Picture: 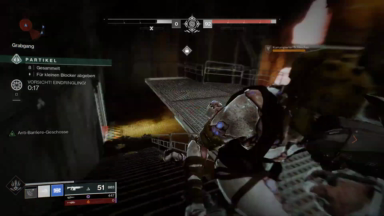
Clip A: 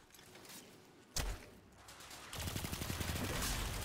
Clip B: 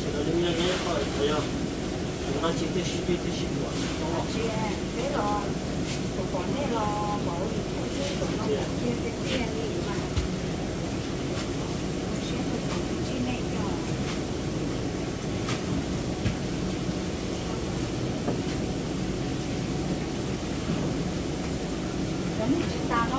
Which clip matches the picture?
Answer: A